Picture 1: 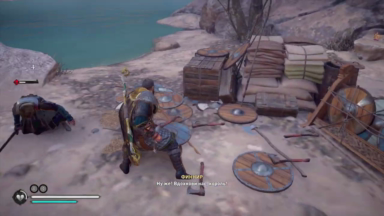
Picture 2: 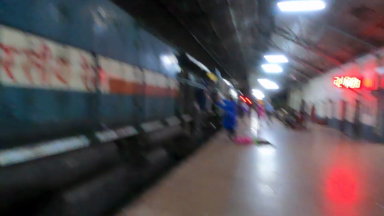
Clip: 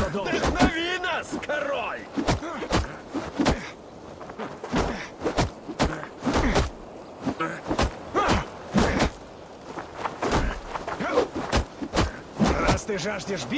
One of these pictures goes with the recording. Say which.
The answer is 1